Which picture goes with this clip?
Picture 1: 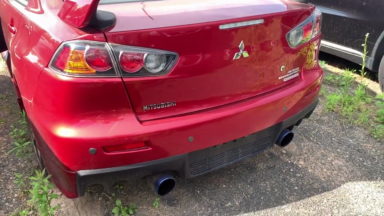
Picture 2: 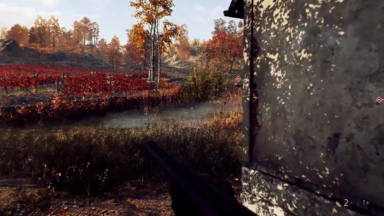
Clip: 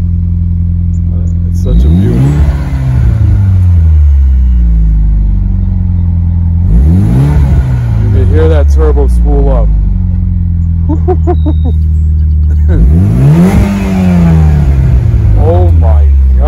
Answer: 1